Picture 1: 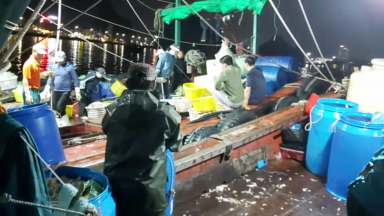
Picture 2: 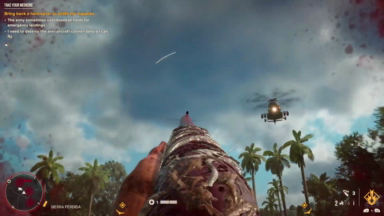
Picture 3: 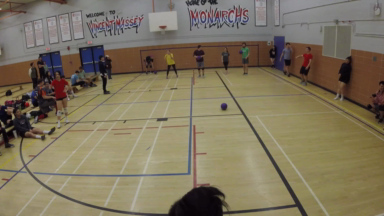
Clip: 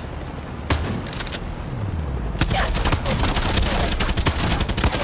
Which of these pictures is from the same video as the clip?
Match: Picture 2